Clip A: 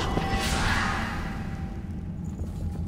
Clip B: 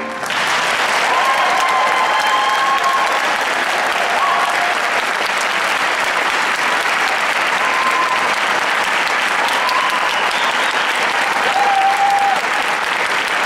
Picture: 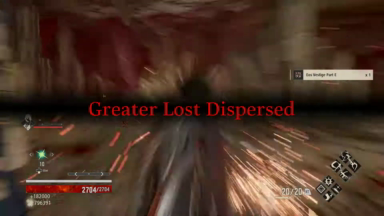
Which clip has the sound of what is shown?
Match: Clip A